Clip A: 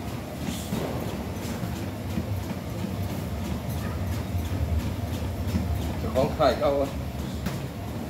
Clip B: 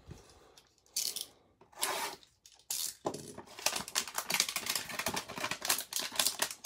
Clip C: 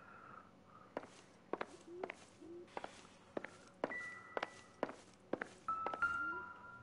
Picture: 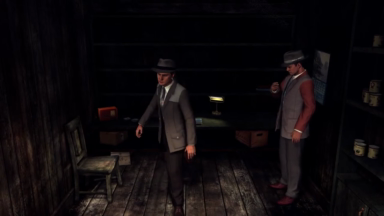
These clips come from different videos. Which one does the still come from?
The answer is C